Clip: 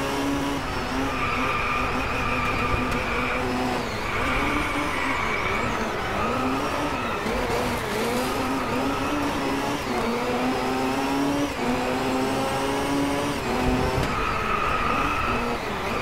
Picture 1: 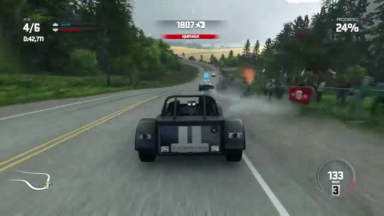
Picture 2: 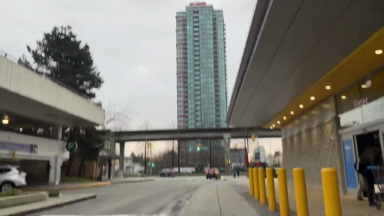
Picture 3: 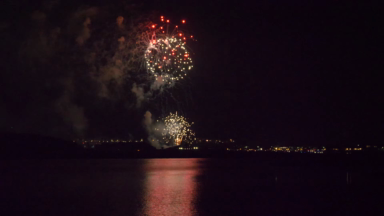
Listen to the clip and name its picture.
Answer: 1